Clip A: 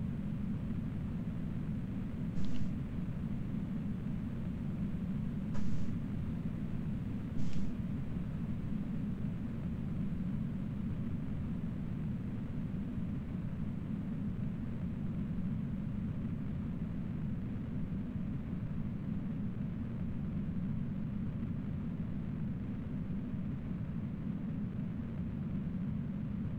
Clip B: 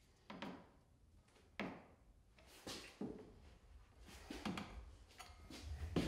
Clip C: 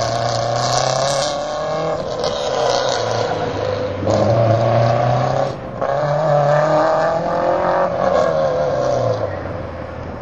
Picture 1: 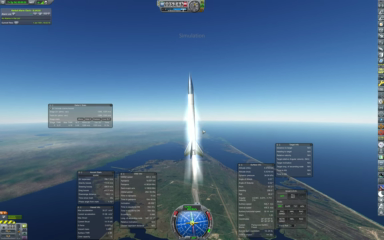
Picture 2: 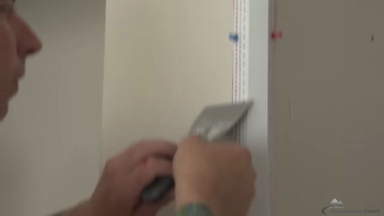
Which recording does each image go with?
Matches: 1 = A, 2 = B